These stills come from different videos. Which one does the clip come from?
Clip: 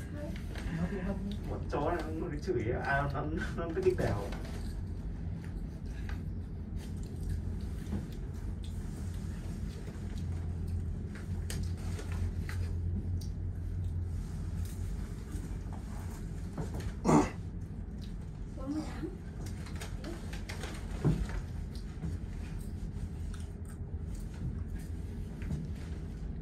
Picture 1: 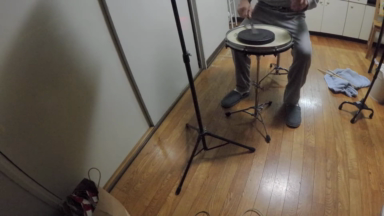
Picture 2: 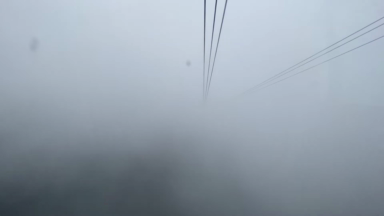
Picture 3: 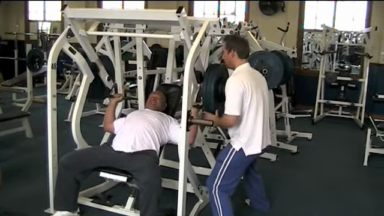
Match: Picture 2